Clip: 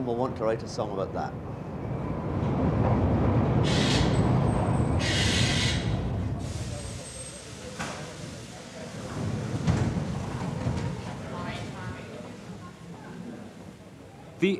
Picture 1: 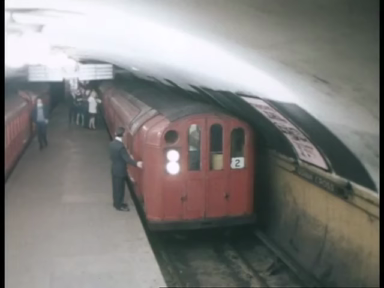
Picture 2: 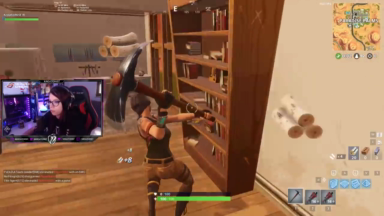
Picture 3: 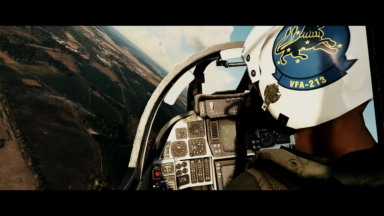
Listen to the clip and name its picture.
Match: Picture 1